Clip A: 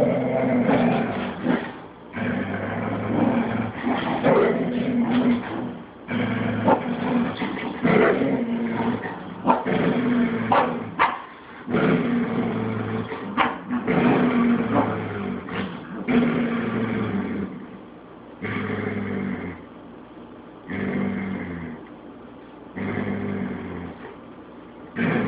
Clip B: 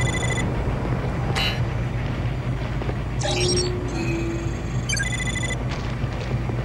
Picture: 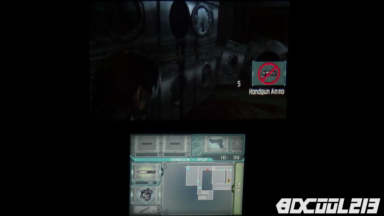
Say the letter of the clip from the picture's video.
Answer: B